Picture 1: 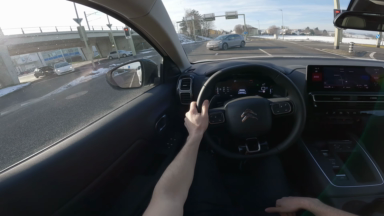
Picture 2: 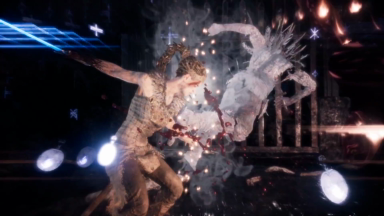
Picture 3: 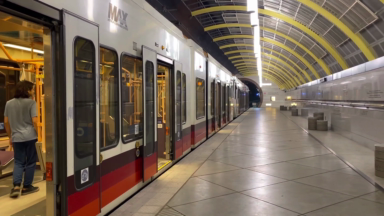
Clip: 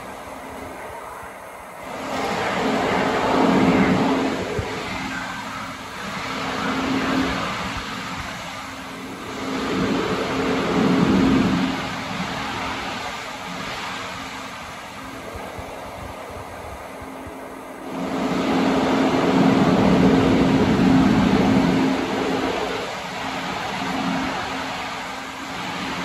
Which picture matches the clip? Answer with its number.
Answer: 3